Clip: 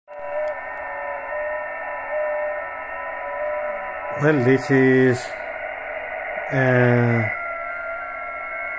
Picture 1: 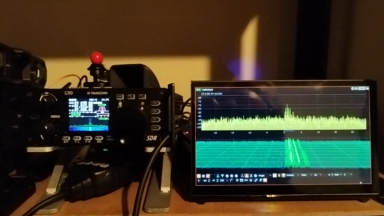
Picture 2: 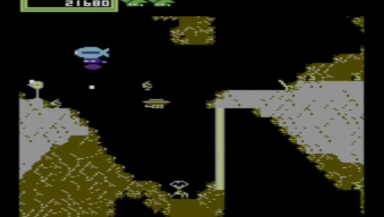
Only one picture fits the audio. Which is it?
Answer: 1